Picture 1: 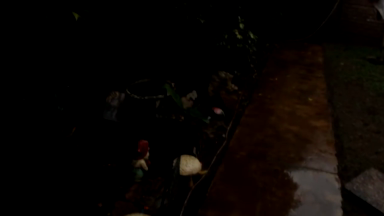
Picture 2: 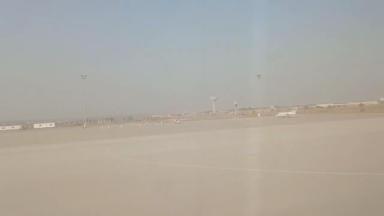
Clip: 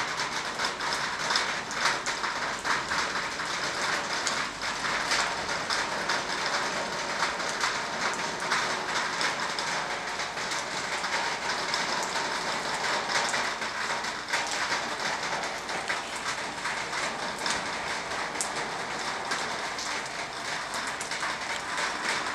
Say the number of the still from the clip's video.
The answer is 1